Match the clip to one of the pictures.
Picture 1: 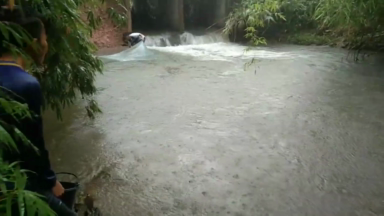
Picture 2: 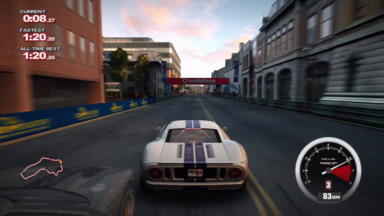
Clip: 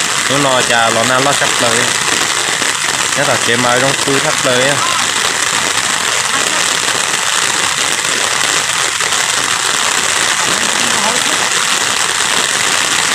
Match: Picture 1